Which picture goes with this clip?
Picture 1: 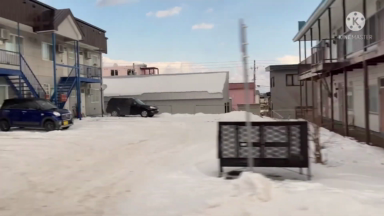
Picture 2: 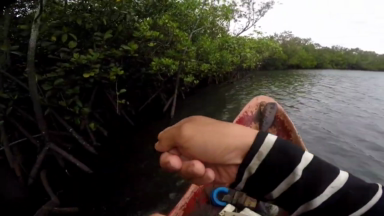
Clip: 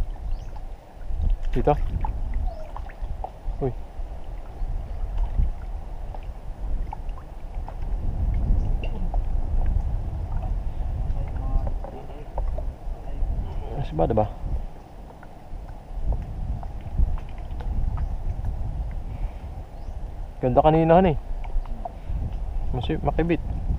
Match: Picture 2